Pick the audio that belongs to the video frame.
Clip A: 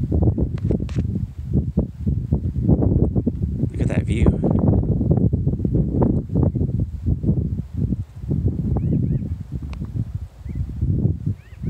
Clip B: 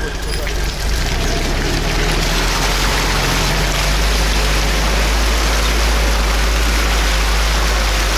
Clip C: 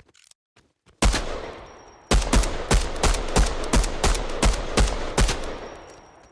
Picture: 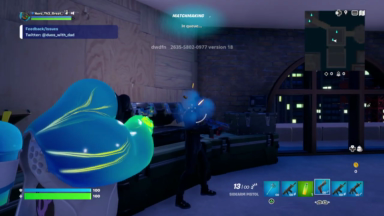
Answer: C